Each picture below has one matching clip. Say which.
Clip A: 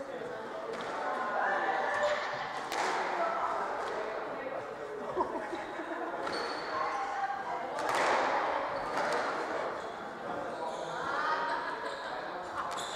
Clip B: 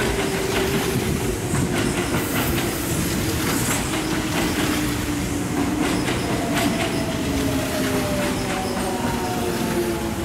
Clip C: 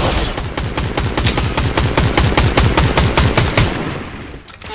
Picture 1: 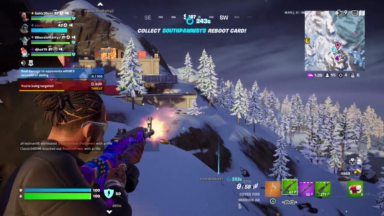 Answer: C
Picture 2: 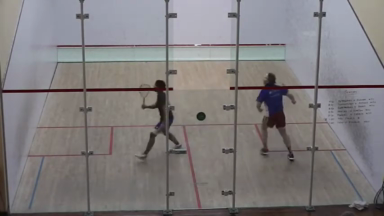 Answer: A